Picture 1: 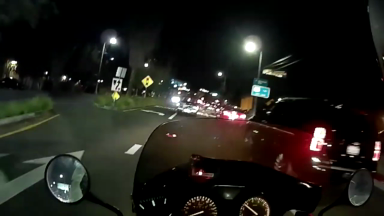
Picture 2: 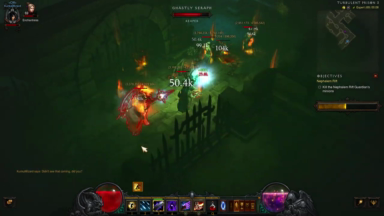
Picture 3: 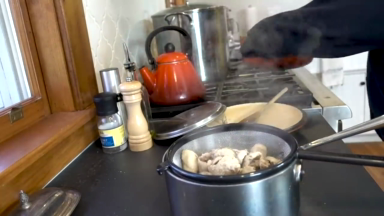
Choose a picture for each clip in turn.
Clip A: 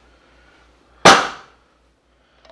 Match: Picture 3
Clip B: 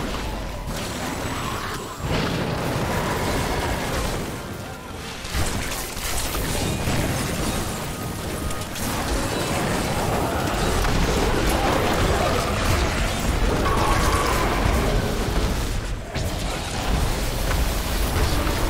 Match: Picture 2